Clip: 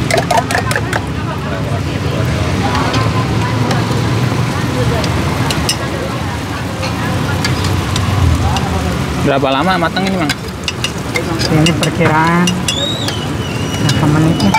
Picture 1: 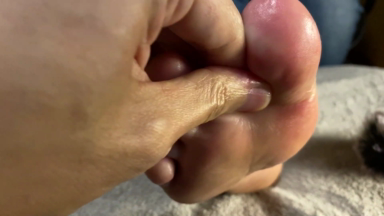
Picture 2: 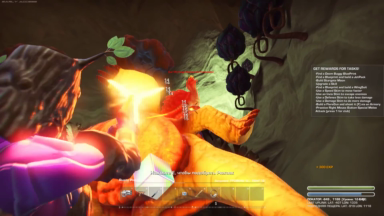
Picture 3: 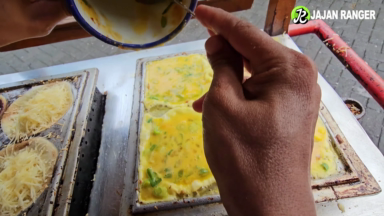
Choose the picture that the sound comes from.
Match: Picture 3